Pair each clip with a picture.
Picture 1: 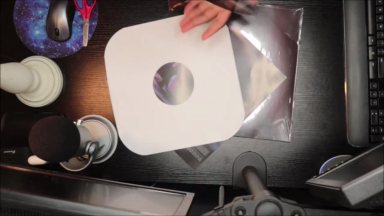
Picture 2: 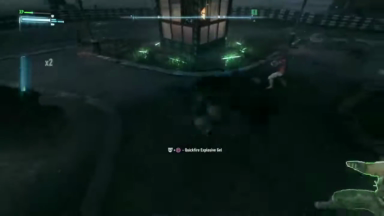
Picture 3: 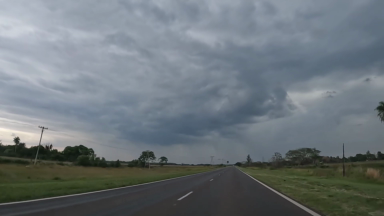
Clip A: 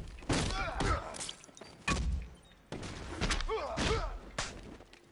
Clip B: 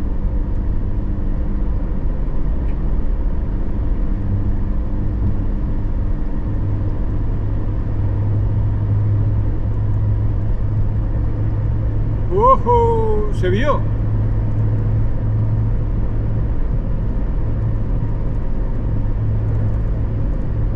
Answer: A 2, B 3